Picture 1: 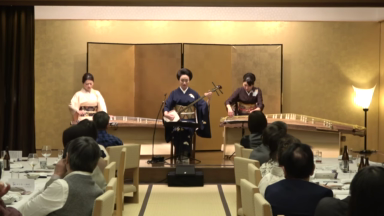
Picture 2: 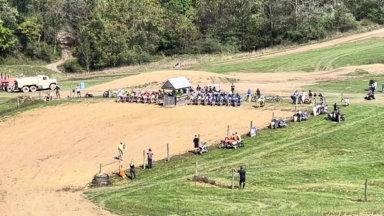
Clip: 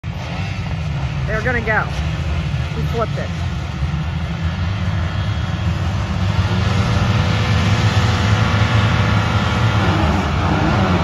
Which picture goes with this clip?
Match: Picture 2